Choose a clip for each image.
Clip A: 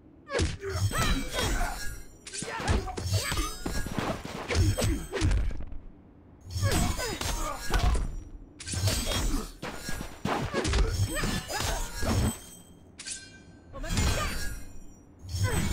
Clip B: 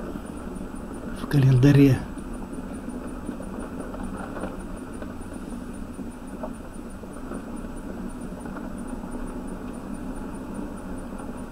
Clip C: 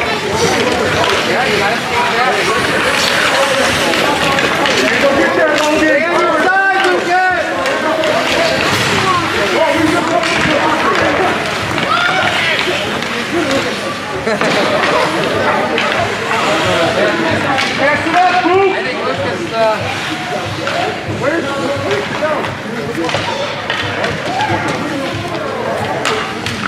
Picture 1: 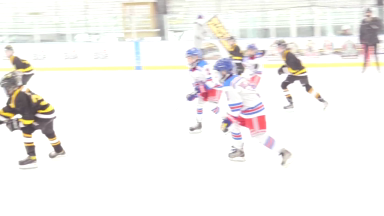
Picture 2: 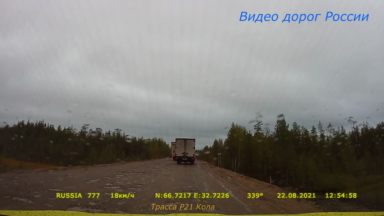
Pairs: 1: C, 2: B